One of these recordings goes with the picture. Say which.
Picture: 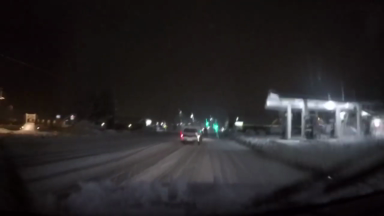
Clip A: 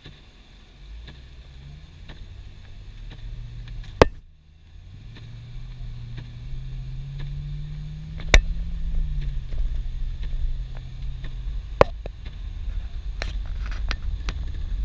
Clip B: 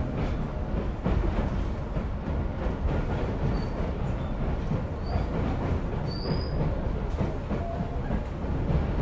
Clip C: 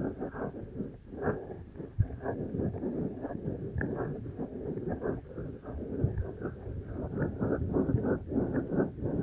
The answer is A